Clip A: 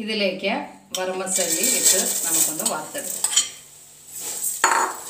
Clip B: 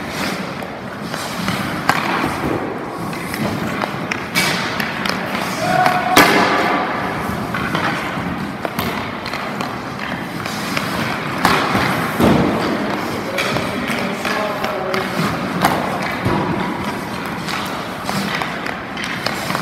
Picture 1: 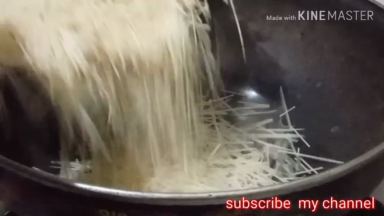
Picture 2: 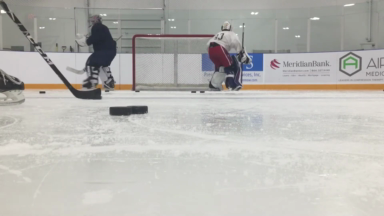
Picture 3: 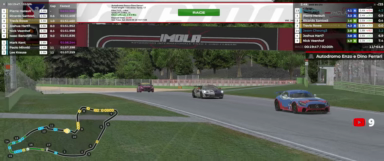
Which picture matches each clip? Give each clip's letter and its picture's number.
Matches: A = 1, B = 2